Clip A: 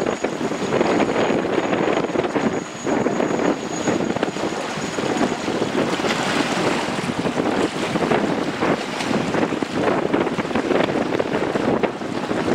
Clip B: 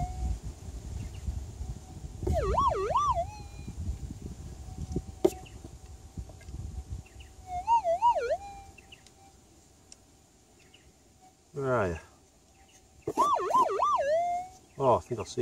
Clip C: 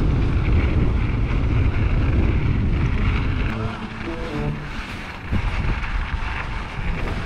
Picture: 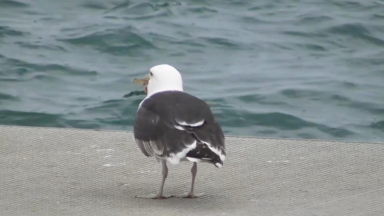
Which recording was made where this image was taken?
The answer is A